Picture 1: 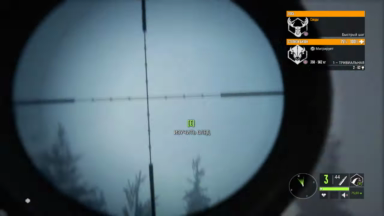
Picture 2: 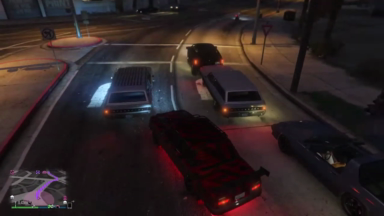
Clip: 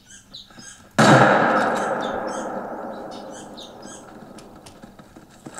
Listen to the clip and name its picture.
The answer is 1